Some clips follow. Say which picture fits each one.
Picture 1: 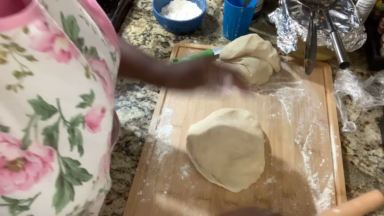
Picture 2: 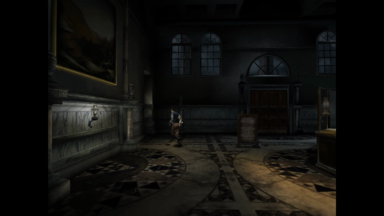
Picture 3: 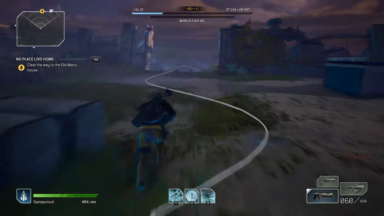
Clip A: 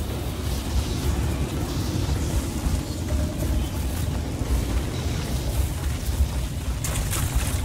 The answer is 3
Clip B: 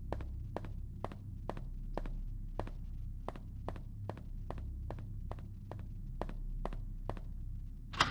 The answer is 2